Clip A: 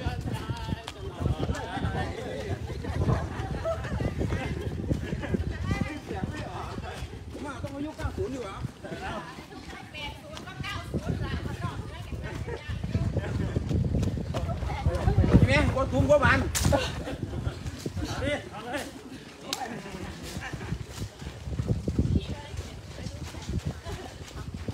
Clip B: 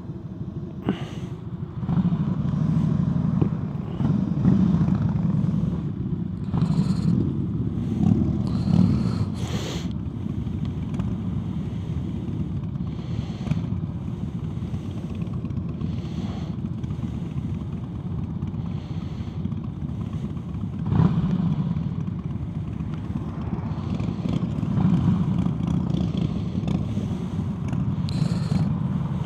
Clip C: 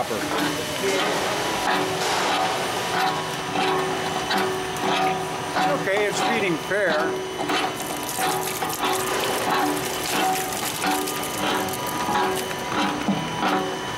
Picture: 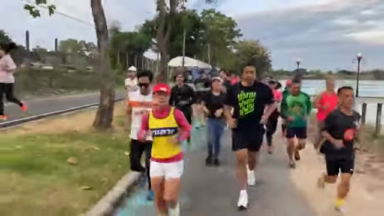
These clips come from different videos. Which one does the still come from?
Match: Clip A